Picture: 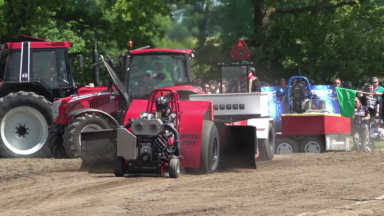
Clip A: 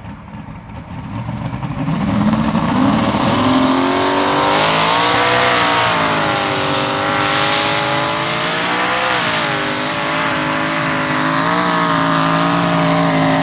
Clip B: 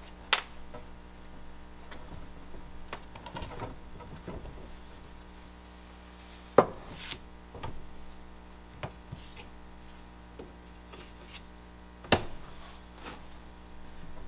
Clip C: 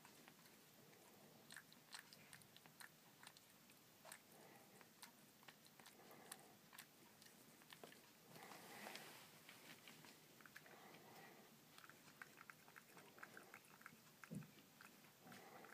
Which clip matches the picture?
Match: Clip A